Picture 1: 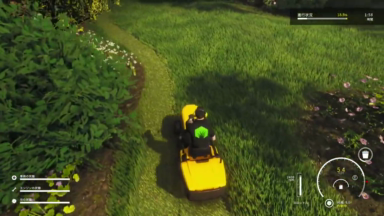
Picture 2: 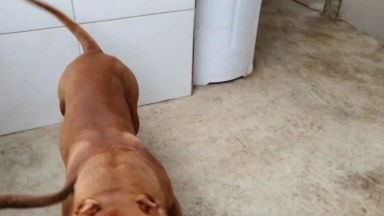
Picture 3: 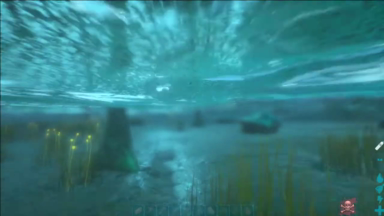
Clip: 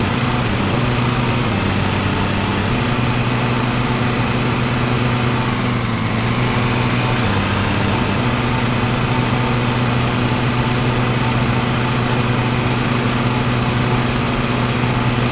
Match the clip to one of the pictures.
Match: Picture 1